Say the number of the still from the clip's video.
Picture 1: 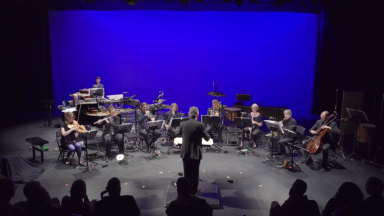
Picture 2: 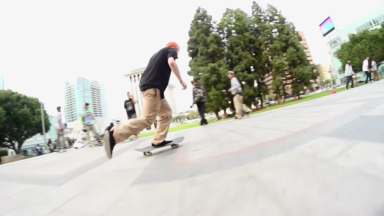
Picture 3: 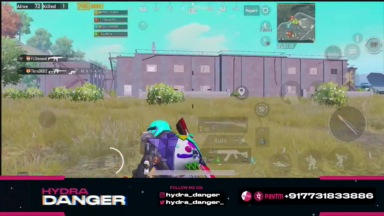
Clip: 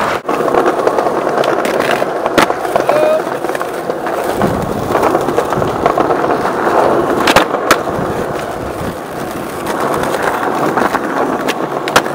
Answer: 2